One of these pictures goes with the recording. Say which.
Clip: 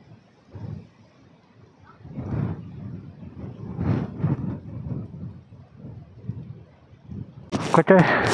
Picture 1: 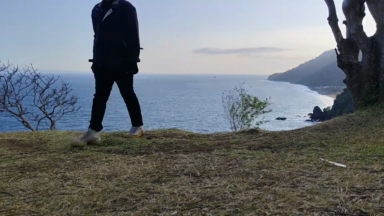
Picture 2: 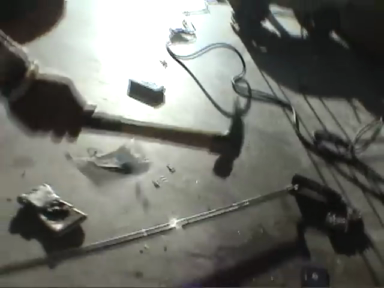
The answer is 1